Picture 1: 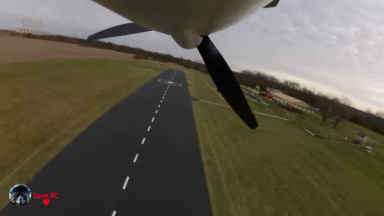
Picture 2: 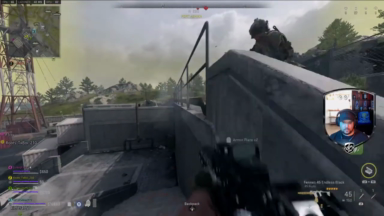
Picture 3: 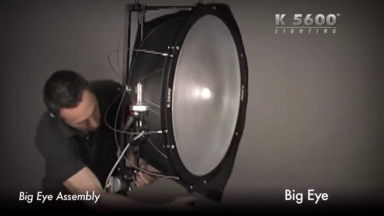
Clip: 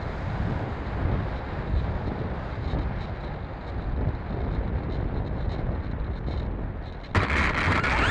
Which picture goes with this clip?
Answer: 1